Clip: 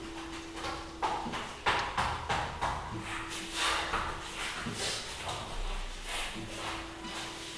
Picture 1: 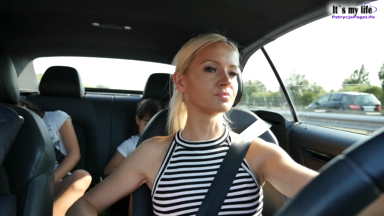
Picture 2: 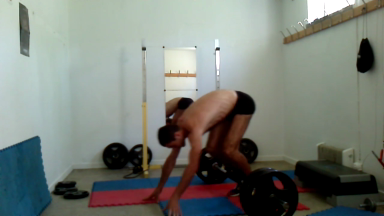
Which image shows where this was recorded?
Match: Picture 2